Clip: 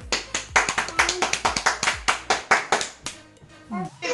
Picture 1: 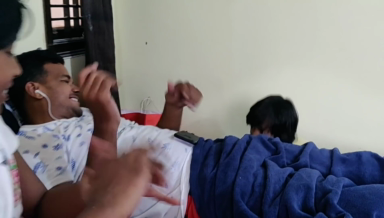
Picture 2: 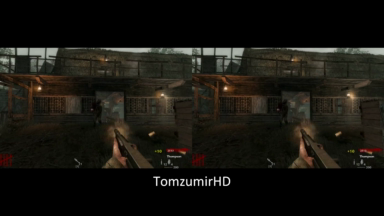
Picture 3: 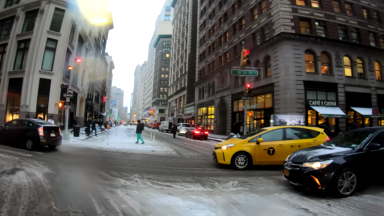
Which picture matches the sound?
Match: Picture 1